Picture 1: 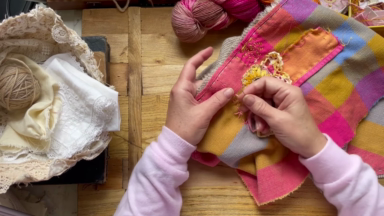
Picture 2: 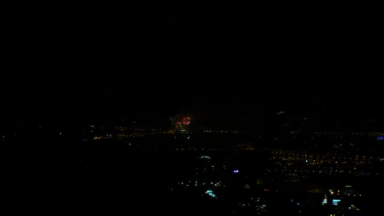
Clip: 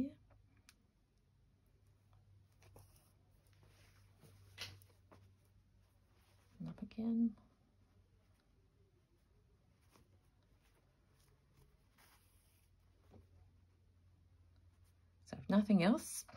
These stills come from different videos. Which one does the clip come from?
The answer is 1